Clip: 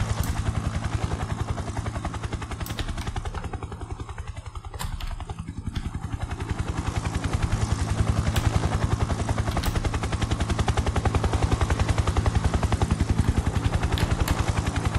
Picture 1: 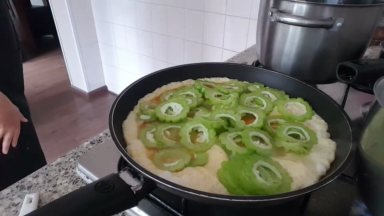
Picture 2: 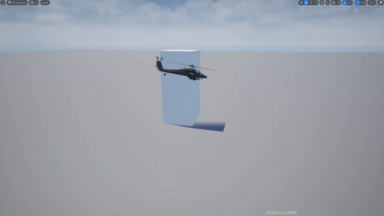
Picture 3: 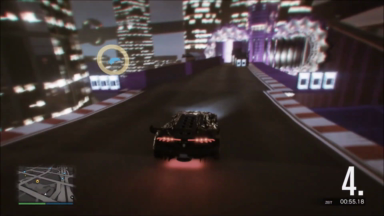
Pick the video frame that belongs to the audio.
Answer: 2